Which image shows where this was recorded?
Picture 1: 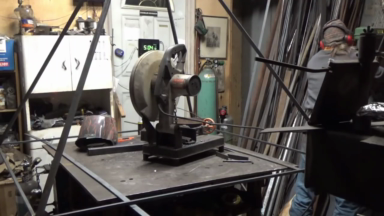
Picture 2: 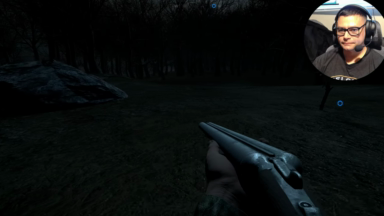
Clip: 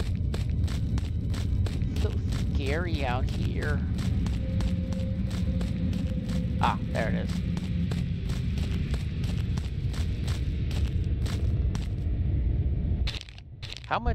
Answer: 2